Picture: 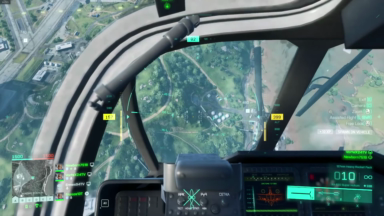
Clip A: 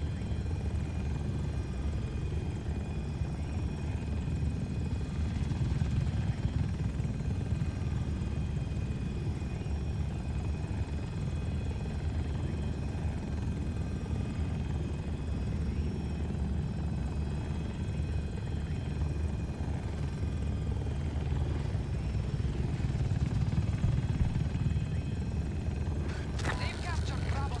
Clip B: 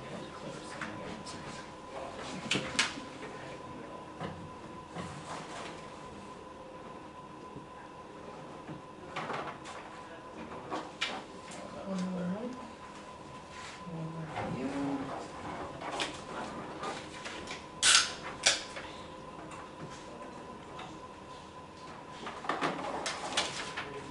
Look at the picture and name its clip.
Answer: A